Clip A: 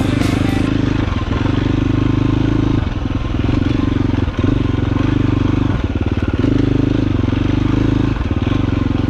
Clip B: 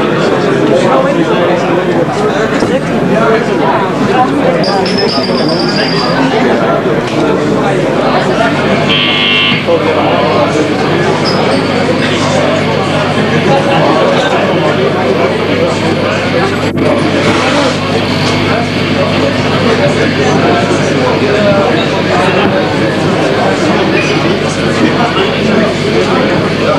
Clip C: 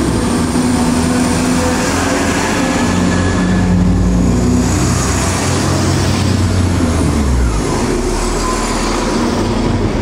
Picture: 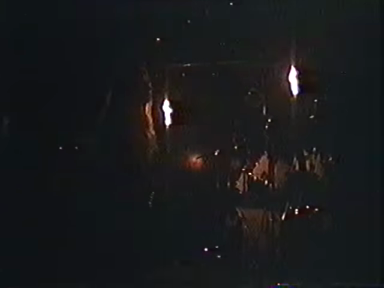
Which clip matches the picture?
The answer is B